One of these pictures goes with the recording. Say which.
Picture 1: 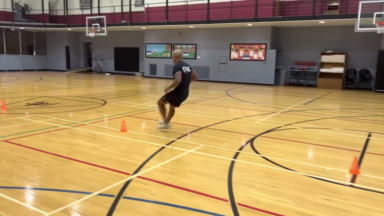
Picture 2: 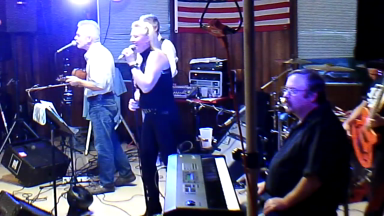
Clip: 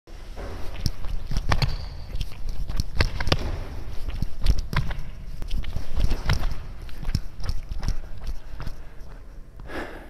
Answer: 1